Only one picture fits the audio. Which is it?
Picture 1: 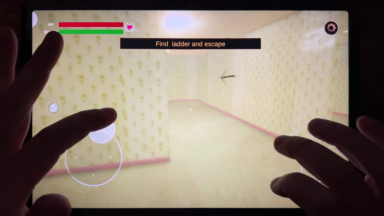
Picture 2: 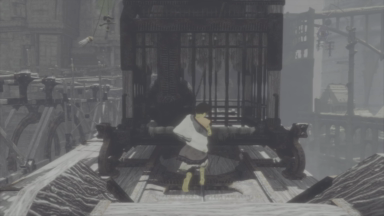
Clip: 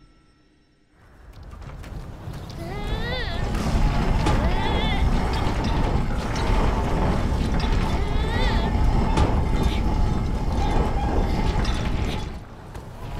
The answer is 2